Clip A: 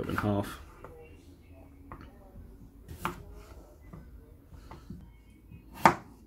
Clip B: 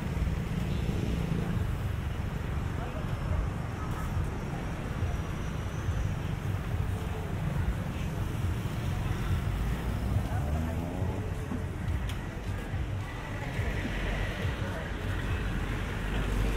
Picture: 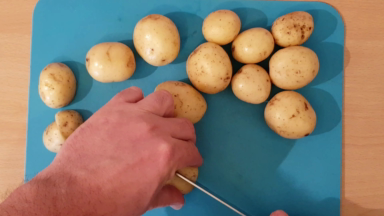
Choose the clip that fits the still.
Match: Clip A